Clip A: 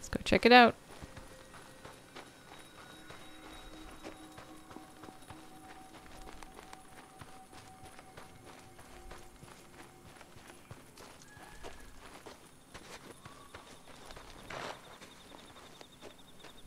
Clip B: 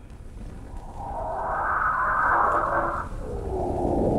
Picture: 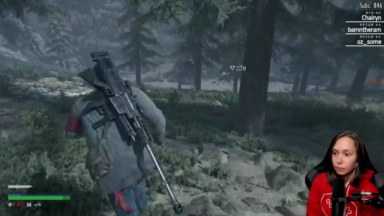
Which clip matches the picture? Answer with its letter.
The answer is A